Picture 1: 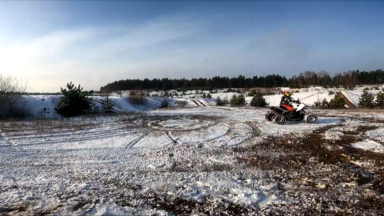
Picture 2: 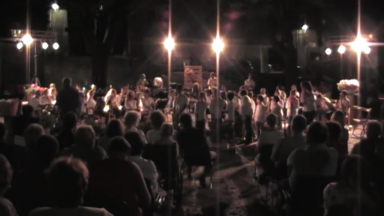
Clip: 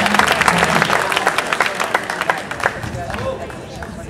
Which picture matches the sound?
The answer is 2